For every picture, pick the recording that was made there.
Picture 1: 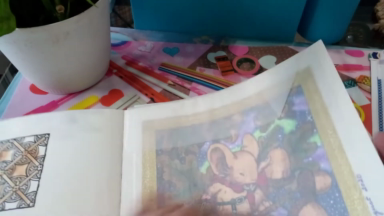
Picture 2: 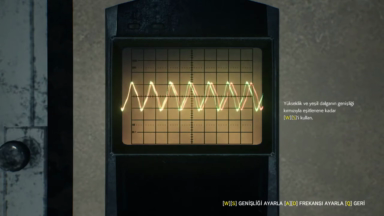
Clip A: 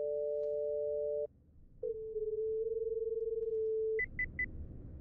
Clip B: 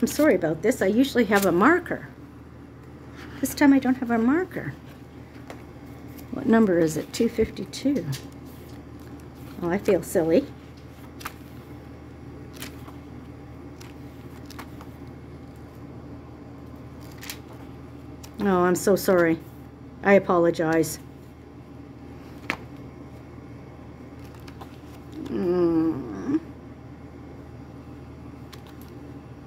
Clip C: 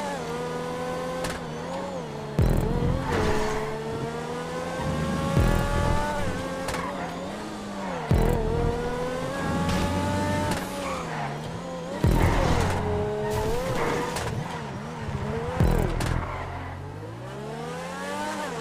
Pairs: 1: B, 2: A